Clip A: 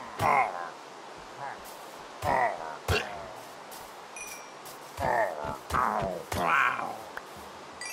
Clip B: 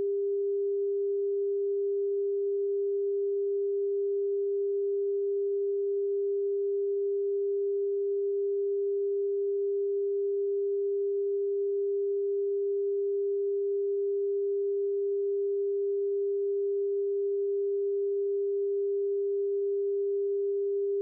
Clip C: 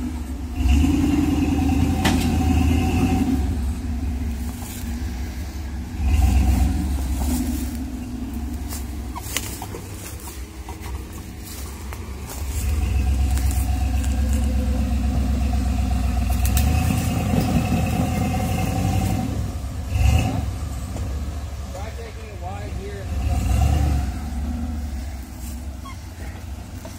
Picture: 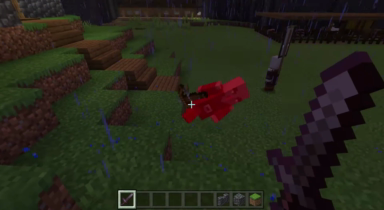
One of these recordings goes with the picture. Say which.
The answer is A